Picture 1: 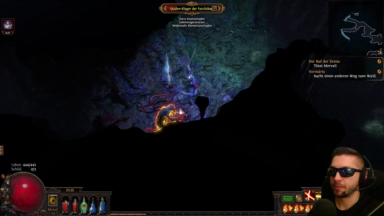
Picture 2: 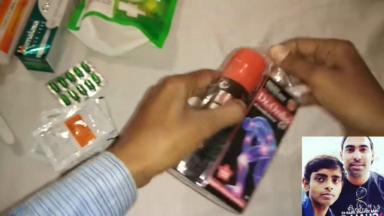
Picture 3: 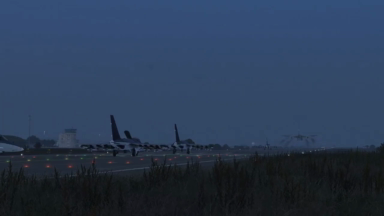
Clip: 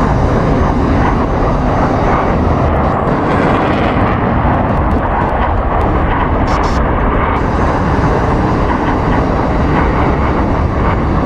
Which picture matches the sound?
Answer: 3